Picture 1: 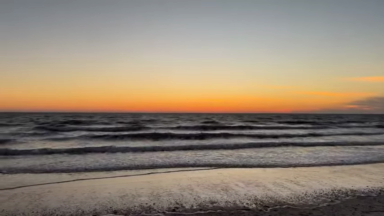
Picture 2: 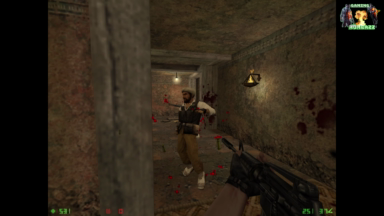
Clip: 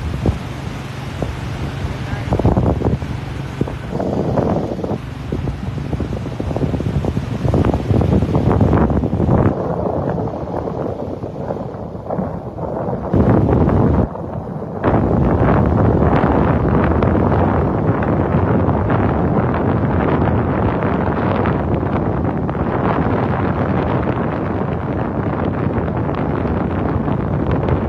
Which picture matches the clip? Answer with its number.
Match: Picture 1